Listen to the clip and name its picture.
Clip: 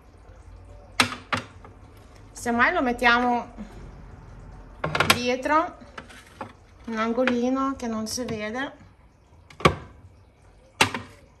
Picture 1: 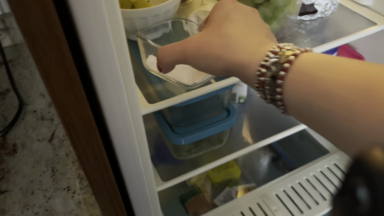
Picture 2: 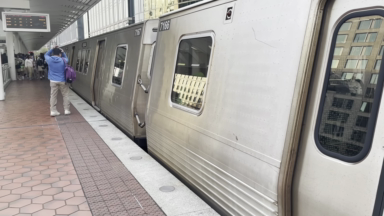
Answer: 1